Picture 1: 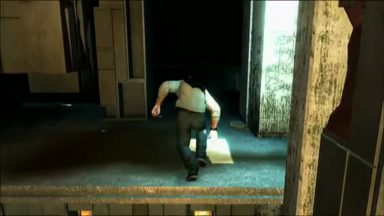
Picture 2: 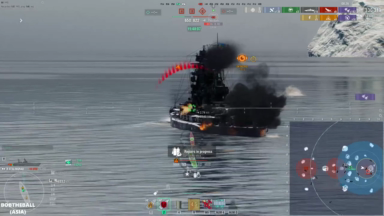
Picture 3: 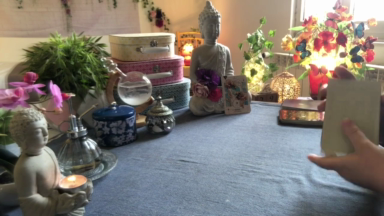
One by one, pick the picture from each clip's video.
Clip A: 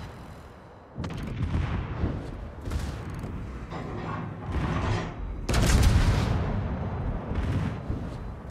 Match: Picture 2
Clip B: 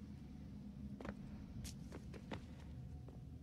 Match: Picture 1